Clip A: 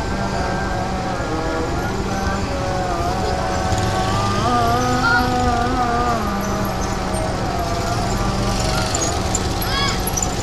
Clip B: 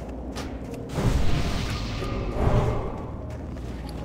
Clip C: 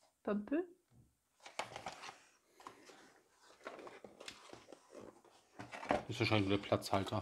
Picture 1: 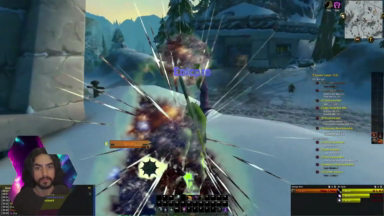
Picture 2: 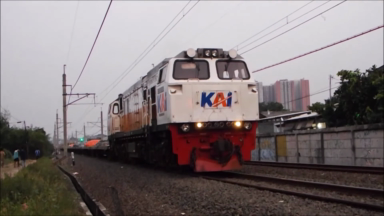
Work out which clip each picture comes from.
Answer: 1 B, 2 A